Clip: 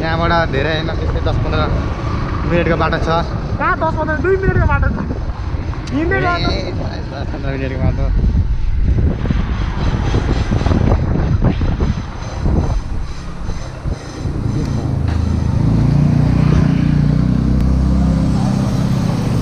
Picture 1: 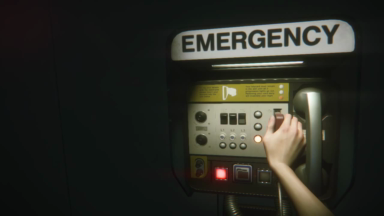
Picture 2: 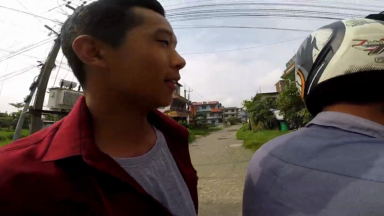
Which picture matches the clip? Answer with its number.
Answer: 2